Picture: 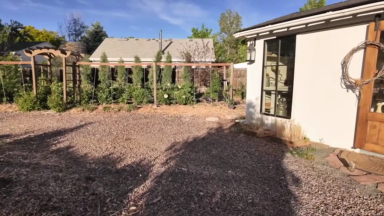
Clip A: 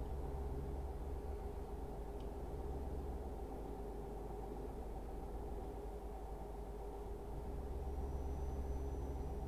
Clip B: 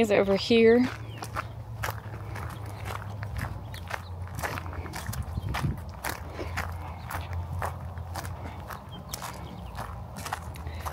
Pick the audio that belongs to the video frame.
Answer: B